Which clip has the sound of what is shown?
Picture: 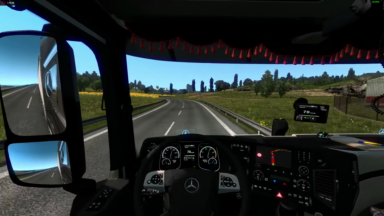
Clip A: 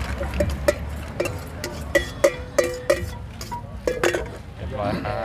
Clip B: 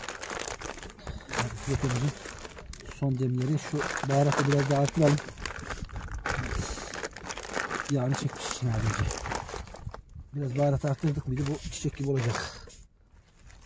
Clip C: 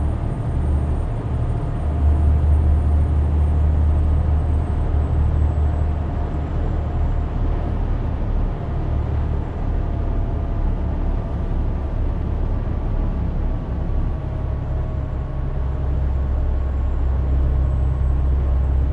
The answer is C